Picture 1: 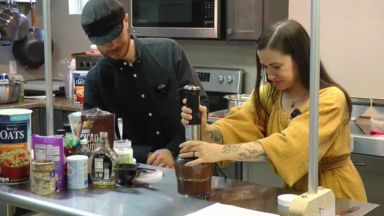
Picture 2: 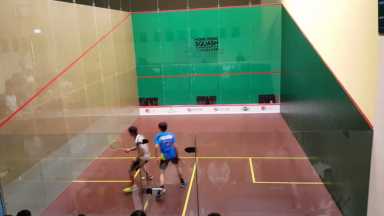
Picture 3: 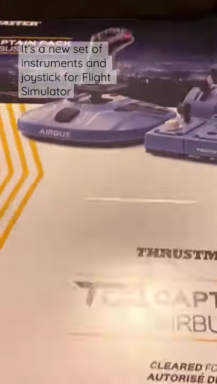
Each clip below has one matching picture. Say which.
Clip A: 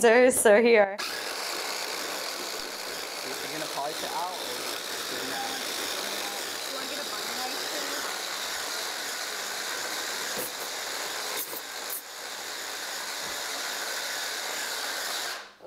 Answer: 1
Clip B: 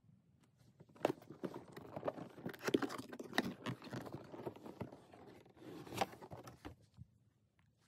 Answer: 3